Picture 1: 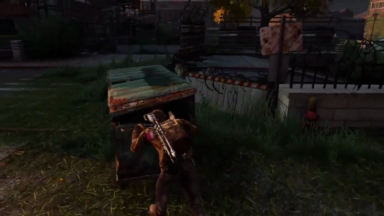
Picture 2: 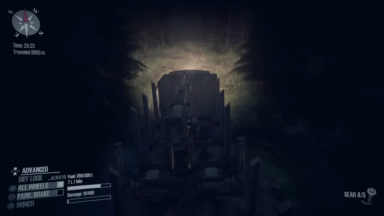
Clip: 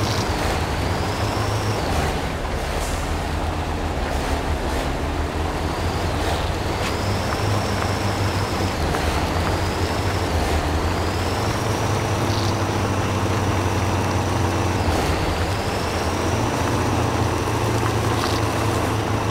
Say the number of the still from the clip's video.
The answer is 2